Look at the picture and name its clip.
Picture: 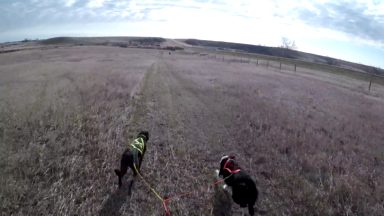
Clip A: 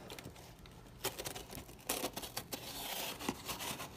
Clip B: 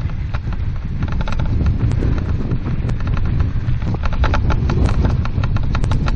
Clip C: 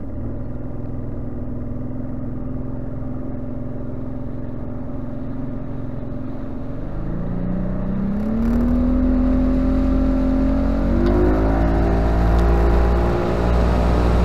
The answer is B